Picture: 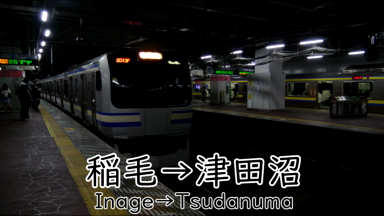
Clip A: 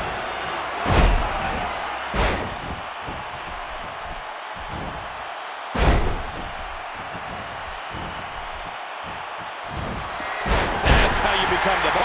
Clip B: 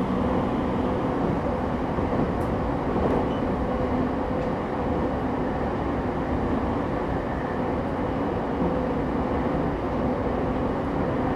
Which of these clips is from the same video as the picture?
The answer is B